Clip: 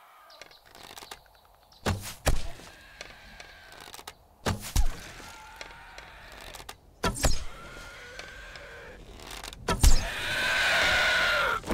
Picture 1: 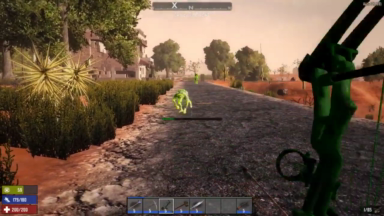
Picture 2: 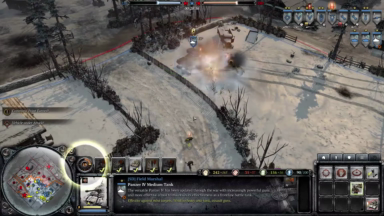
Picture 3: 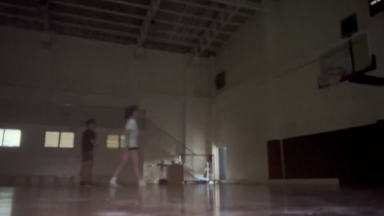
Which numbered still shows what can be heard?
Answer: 1